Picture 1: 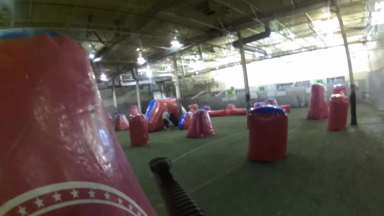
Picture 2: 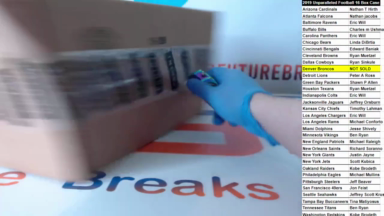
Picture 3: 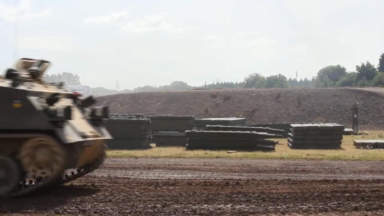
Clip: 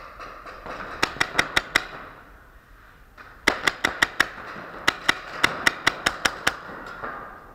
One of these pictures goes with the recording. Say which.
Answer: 1